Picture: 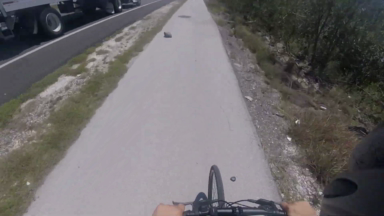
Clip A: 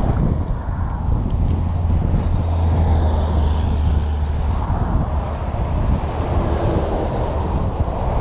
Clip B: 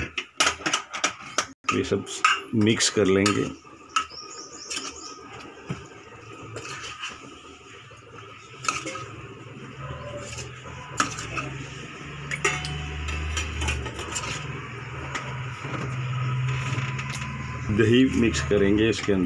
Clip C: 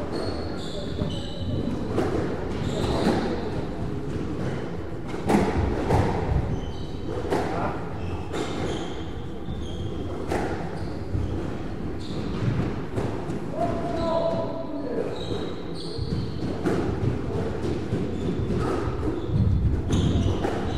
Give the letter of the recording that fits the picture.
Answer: A